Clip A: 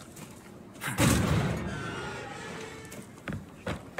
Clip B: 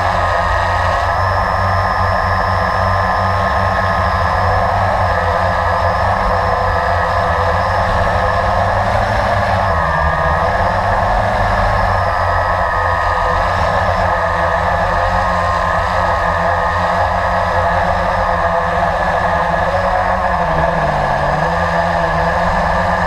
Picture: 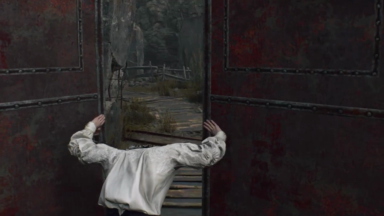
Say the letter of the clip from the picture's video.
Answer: A